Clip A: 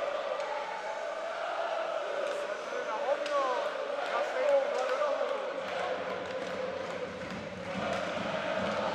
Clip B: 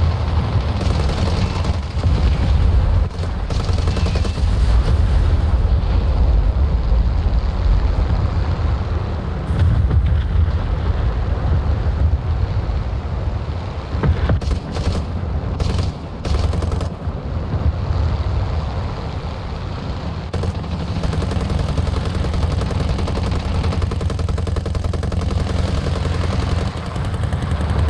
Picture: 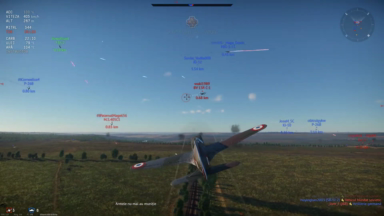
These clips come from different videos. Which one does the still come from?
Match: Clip B